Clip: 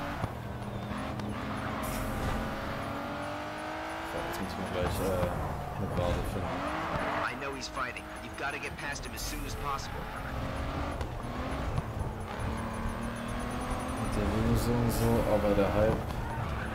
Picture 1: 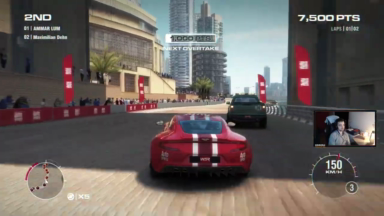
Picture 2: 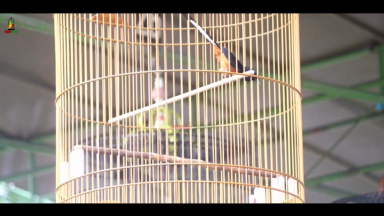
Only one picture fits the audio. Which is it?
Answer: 1